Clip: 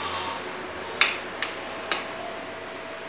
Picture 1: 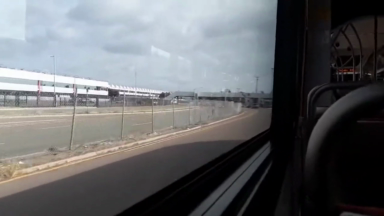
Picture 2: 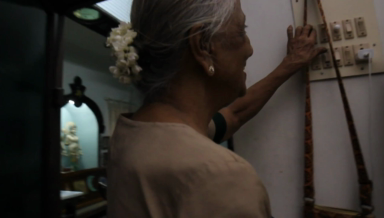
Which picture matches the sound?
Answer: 2